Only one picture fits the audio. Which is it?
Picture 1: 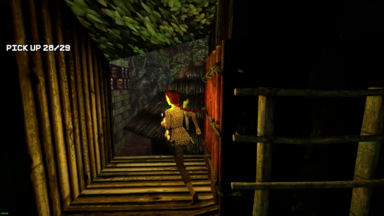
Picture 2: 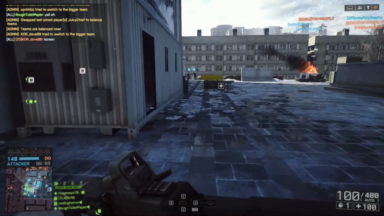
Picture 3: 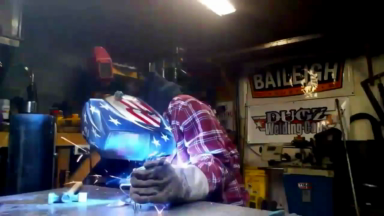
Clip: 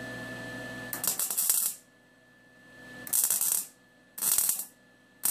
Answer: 3